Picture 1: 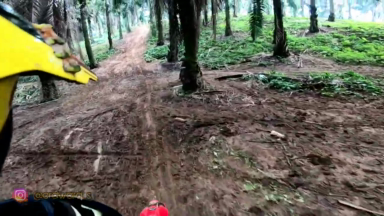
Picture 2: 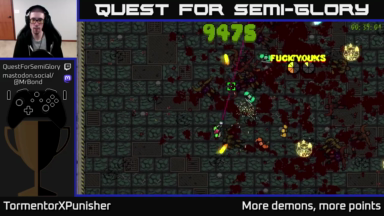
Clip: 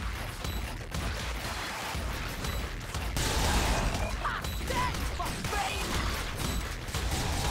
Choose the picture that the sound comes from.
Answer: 2